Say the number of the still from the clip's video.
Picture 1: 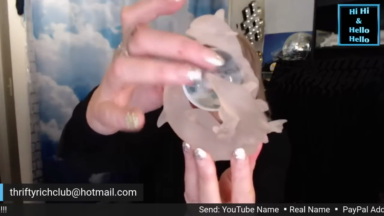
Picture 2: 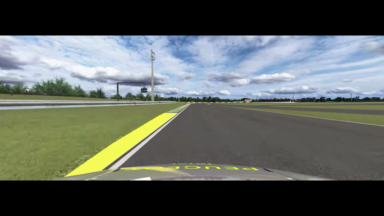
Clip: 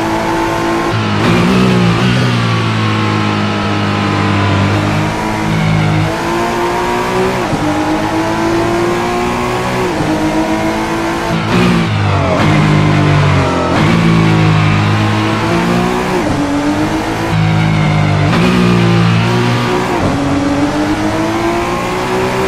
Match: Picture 2